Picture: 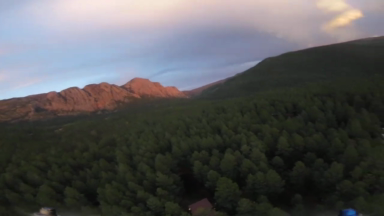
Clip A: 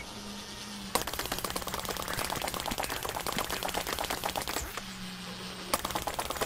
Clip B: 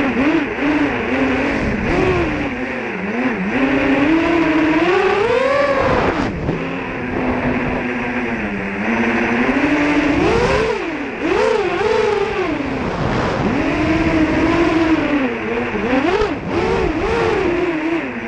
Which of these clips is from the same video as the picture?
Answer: B